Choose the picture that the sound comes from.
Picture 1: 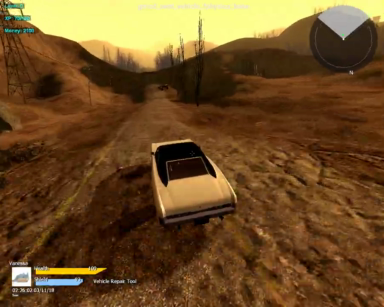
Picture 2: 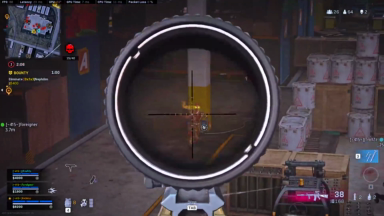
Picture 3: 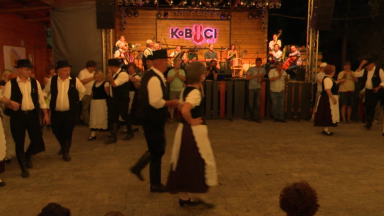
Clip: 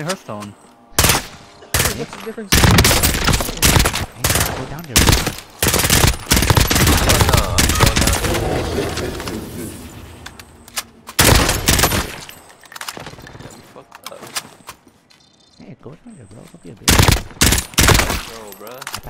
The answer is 2